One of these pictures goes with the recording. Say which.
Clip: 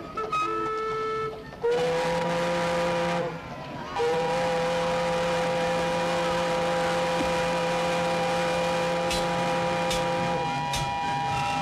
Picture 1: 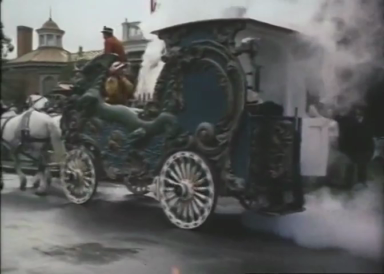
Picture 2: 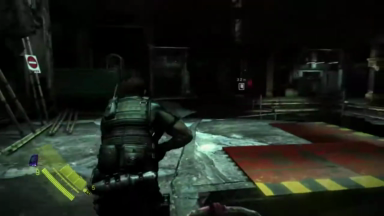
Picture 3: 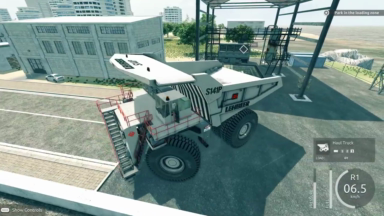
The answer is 1